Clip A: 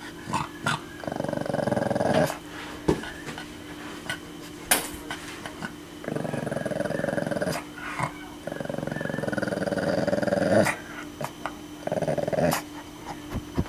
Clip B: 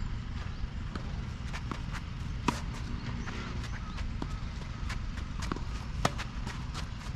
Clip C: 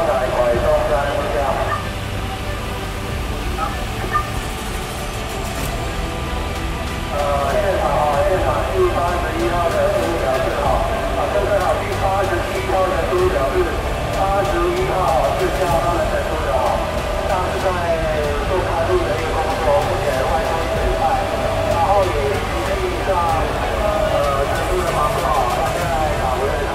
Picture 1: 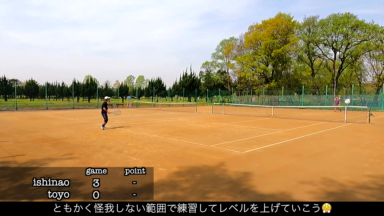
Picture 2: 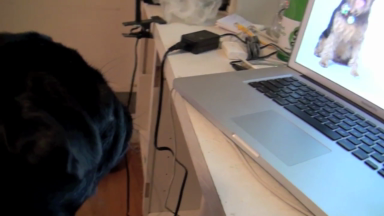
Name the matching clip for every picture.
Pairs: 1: B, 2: A